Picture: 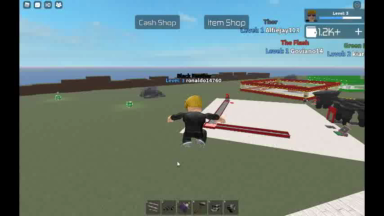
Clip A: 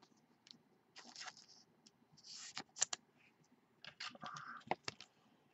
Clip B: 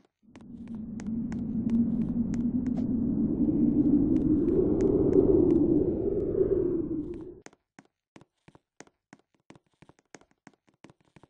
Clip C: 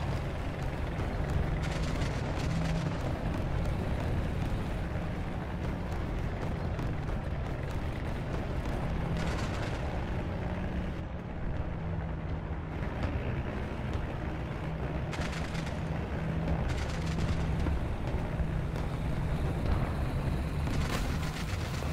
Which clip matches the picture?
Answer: B